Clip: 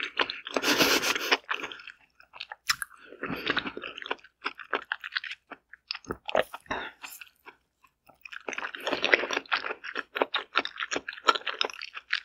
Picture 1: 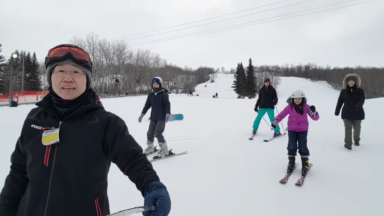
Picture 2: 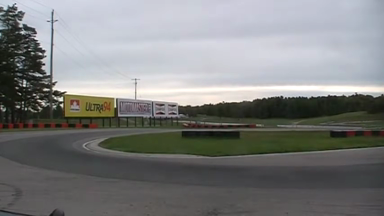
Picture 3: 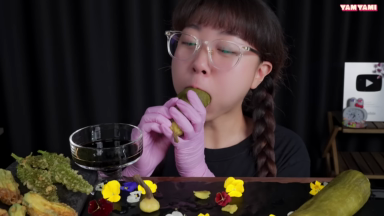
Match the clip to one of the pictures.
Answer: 3